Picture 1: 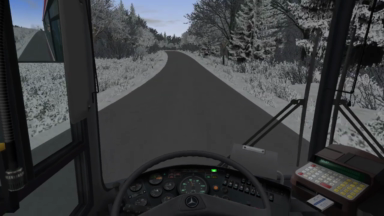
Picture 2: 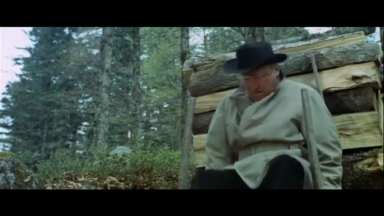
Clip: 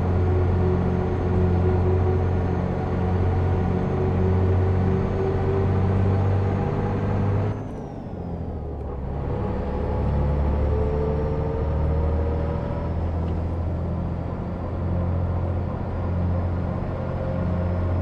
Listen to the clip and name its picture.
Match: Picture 1